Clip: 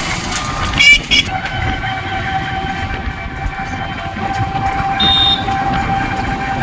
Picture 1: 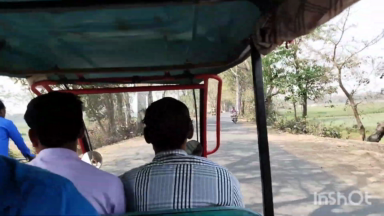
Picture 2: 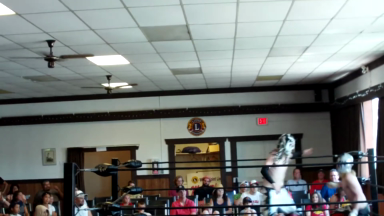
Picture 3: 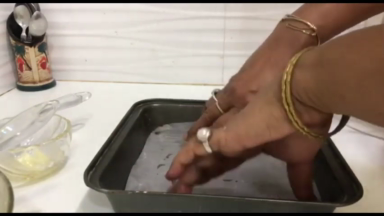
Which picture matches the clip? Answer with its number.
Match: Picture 1